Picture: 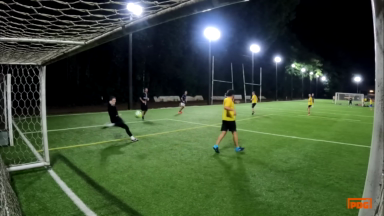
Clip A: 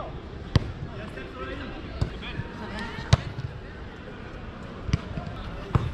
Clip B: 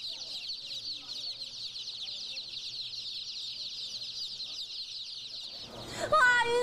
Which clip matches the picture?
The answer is A